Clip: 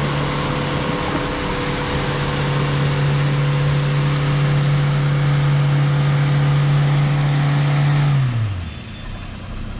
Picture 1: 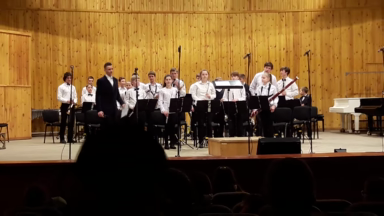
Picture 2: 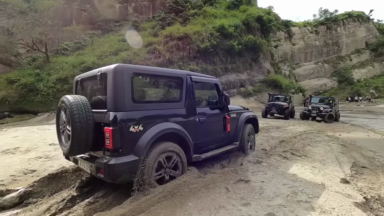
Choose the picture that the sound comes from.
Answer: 2